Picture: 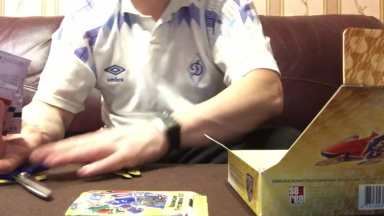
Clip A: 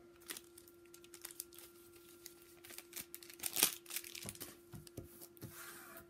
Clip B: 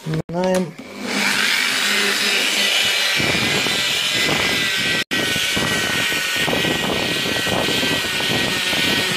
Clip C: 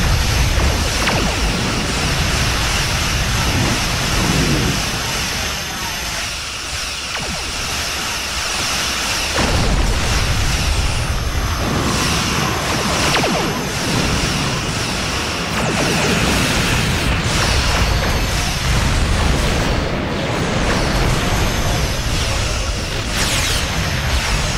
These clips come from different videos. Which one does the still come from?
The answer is A